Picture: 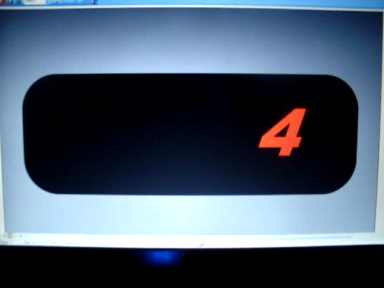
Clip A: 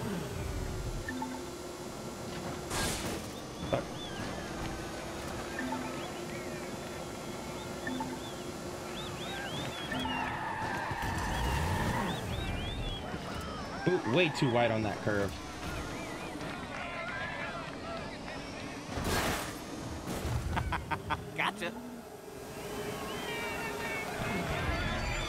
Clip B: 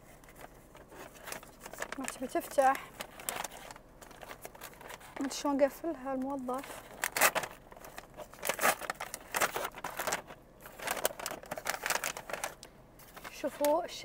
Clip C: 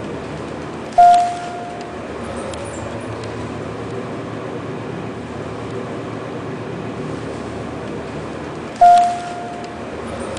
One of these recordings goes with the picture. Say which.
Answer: C